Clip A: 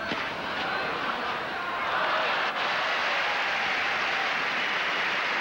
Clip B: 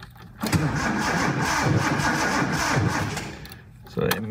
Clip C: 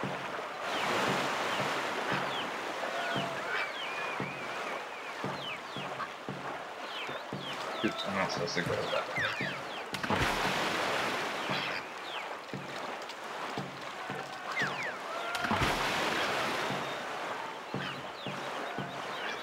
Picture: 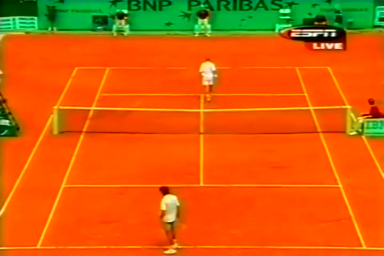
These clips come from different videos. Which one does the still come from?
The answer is A